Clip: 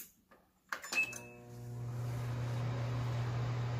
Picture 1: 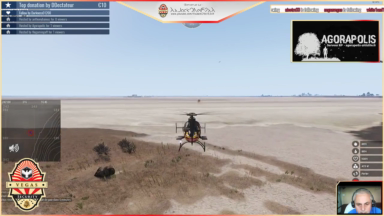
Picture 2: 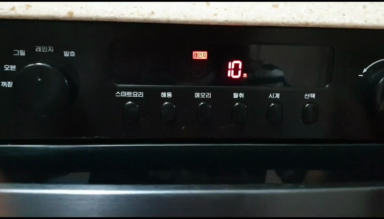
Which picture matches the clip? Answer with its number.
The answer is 2